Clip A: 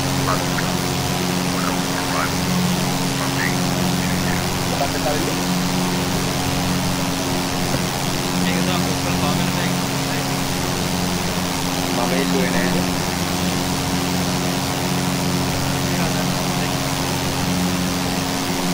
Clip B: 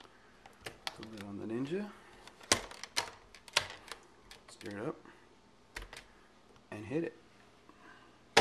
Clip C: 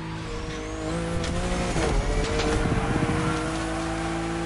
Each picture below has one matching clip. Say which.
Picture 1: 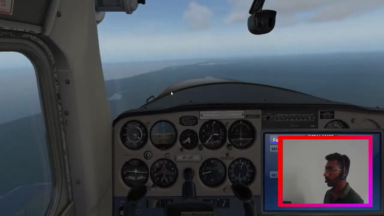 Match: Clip A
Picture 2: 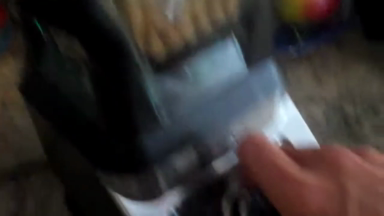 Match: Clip B